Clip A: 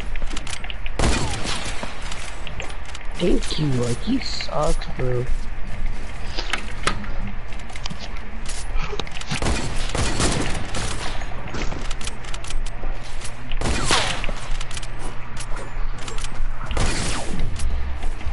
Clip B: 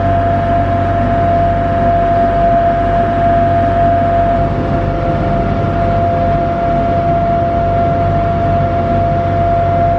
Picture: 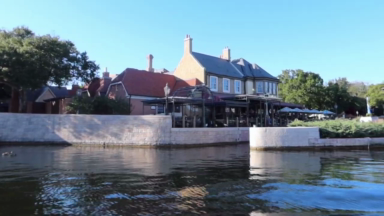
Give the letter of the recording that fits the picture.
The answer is B